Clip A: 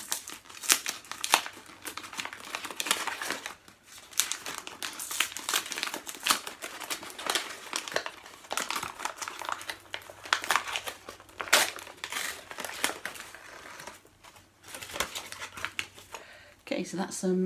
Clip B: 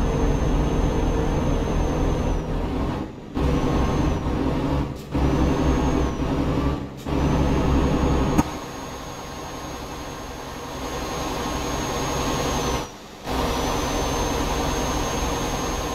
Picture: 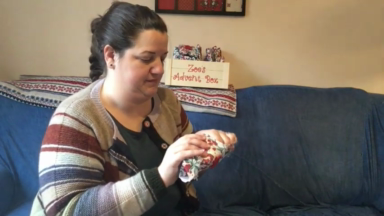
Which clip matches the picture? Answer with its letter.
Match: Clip A